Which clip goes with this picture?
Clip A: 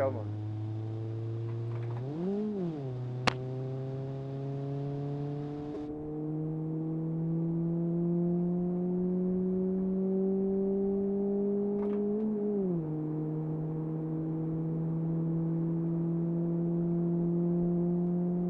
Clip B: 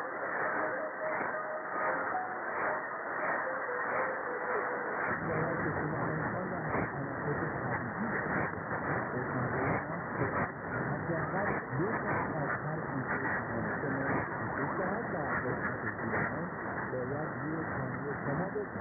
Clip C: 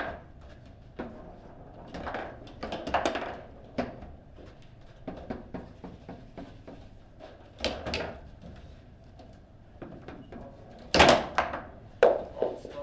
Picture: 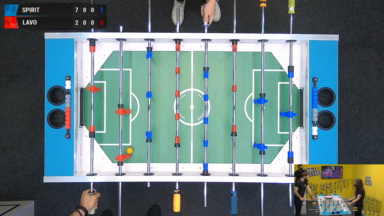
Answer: C